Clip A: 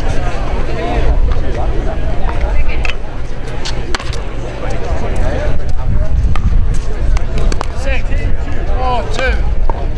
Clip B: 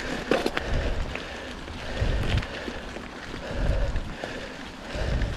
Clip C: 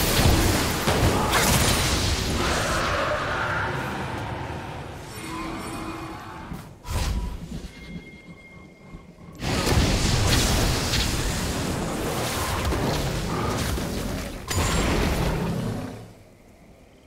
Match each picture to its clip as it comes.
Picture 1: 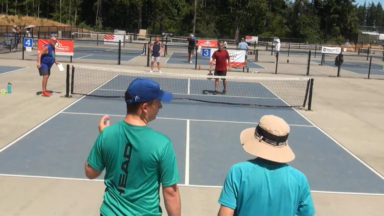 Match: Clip A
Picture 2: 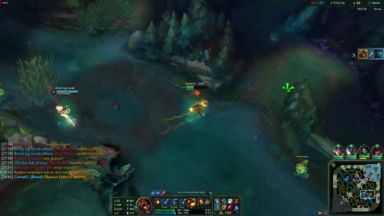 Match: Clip C